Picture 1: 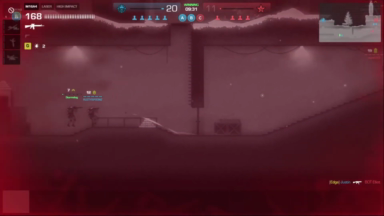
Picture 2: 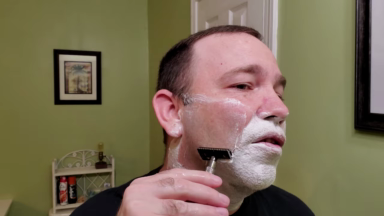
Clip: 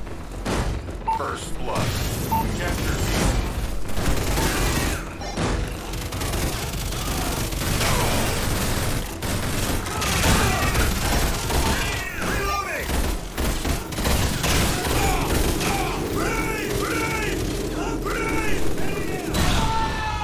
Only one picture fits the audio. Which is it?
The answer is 1